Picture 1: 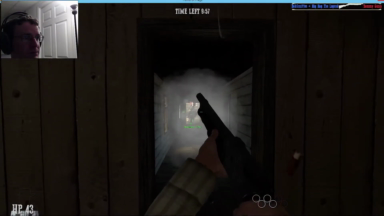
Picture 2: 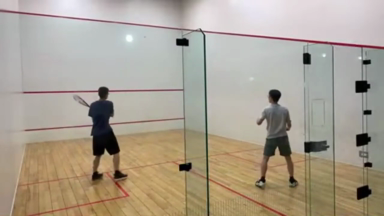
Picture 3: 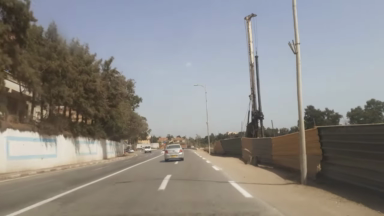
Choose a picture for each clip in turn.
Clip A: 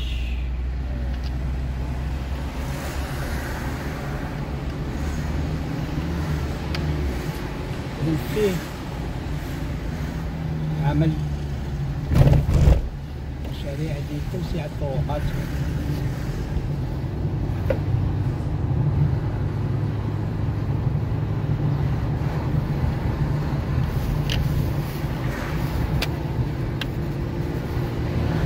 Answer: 3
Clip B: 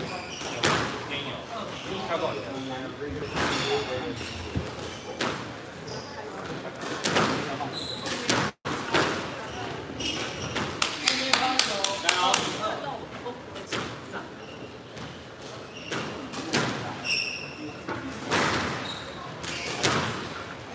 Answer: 2